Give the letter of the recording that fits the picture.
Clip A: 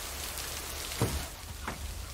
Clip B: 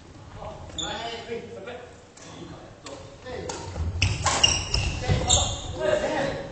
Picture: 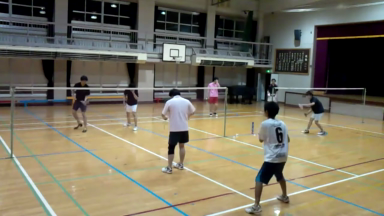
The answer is B